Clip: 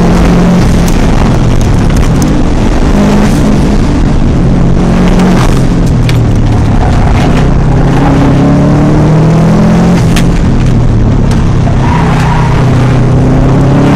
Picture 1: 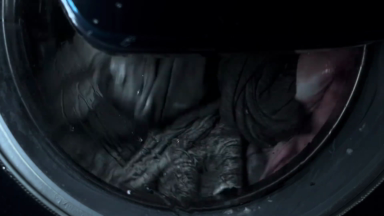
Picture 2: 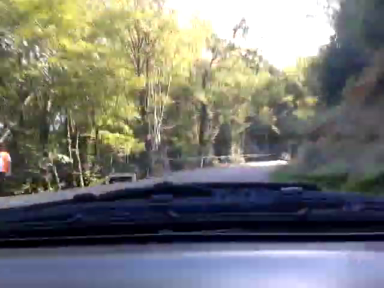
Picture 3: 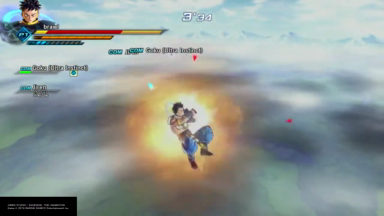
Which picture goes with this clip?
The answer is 2